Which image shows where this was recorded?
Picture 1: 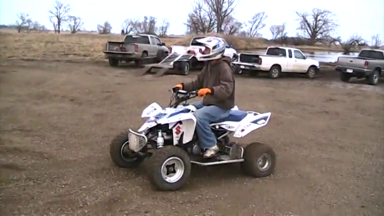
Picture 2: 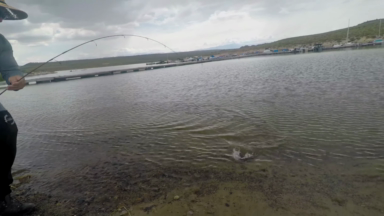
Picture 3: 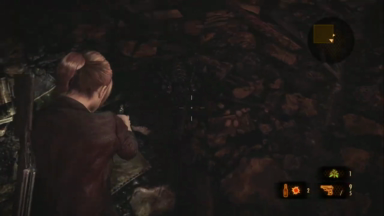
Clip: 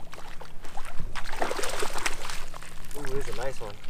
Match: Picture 2